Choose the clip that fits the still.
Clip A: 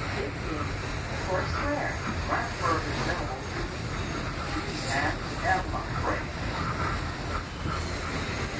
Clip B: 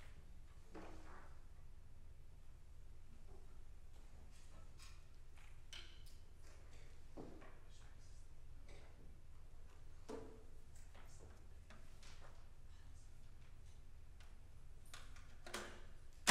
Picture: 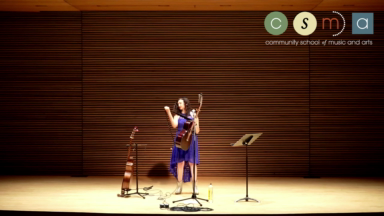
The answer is B